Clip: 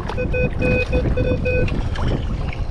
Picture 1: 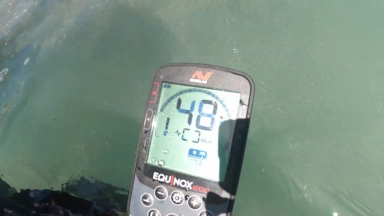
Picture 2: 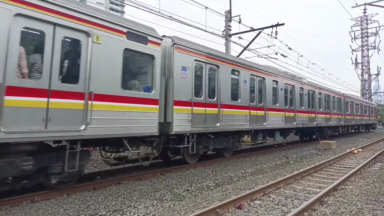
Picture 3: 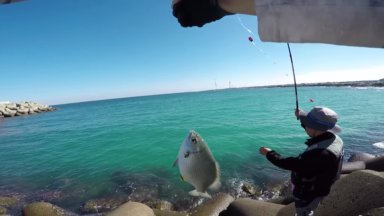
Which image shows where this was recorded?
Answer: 1